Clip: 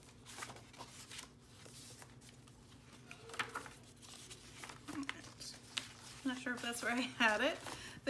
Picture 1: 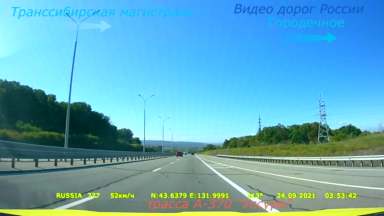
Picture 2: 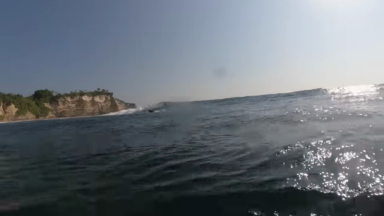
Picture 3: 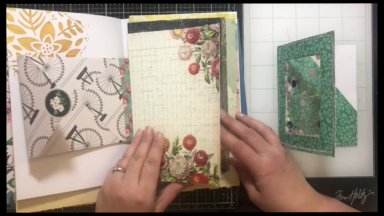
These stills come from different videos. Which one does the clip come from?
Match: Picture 3